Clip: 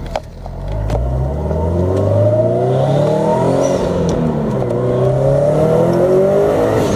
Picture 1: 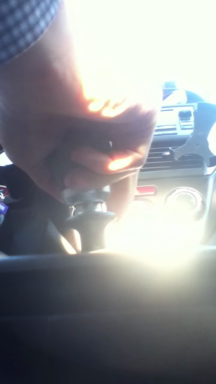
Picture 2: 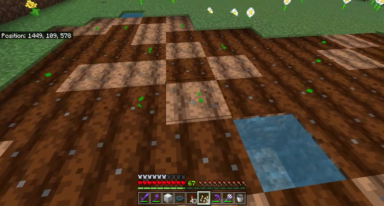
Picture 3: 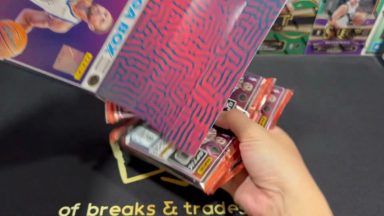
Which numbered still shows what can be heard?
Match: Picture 1